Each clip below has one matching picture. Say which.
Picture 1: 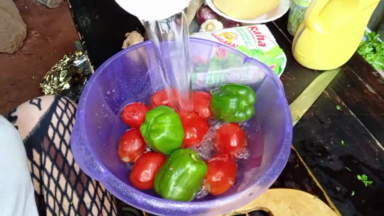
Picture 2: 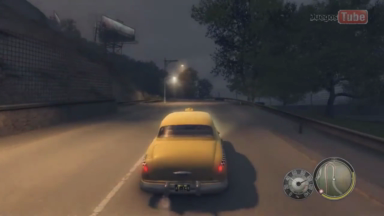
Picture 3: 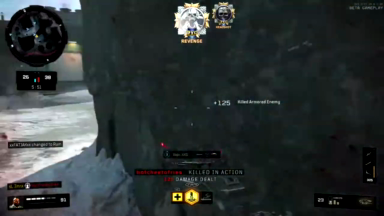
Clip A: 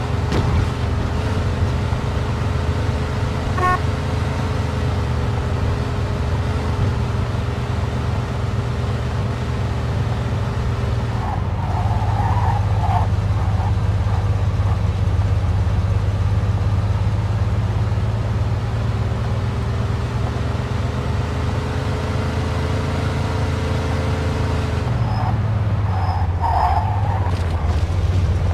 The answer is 2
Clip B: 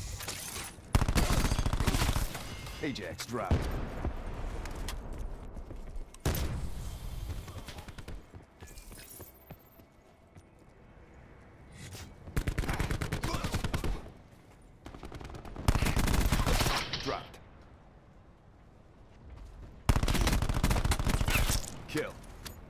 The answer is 3